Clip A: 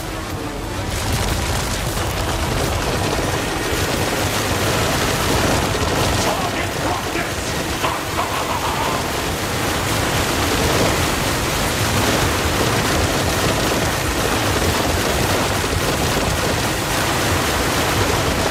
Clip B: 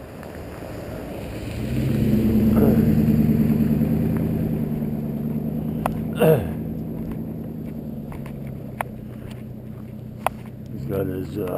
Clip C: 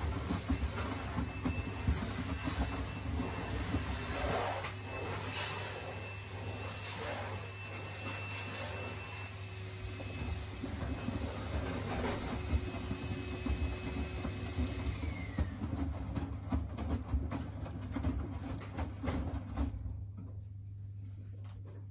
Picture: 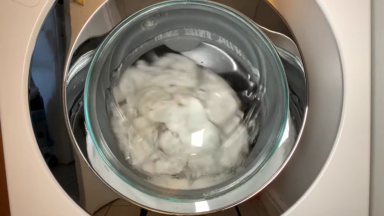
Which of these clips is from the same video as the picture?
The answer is C